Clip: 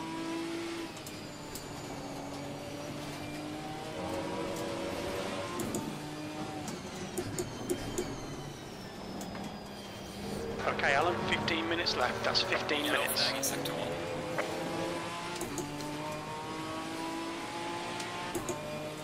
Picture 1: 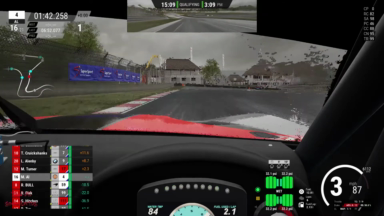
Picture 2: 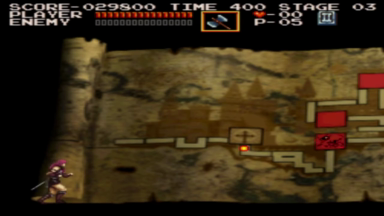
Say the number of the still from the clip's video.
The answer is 1